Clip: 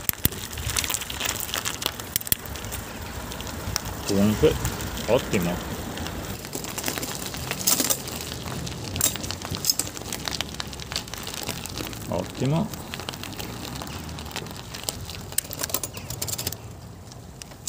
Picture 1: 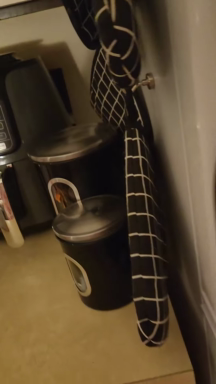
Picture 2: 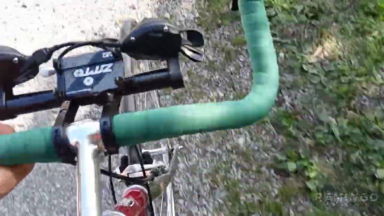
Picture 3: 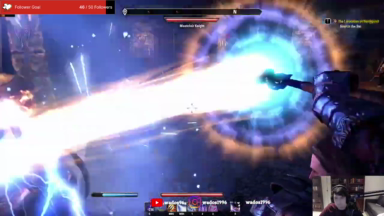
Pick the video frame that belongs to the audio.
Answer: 2